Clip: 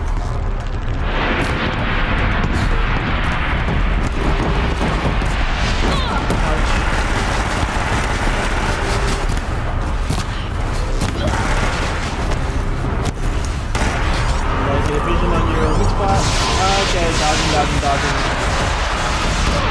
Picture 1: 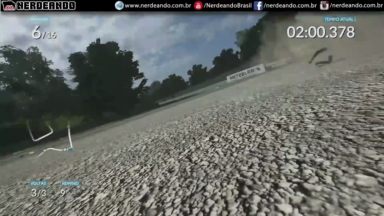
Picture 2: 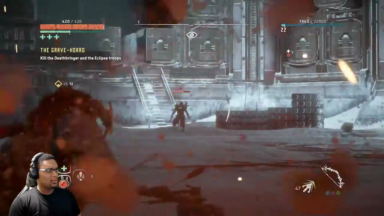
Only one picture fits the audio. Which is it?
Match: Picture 2